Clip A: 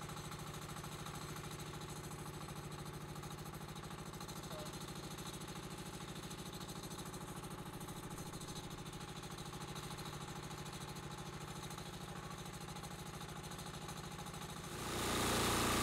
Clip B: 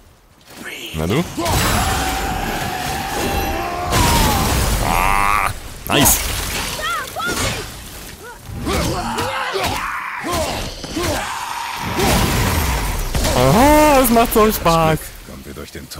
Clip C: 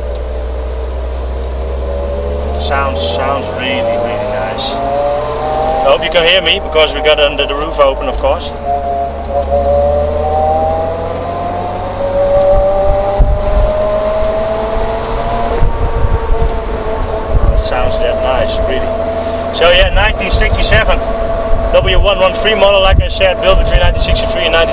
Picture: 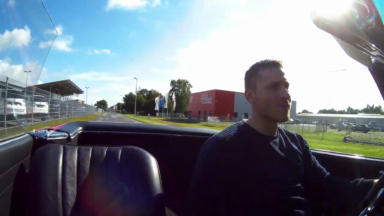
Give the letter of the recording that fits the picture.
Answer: C